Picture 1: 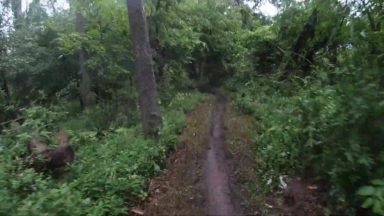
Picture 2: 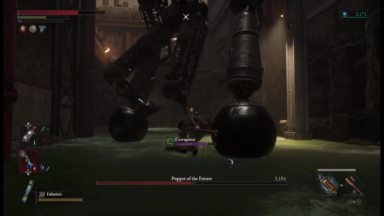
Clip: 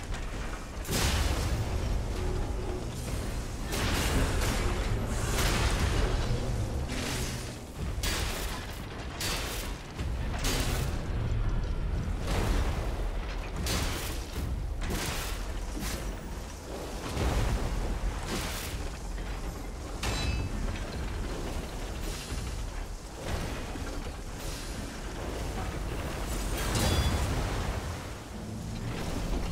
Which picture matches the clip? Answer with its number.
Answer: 2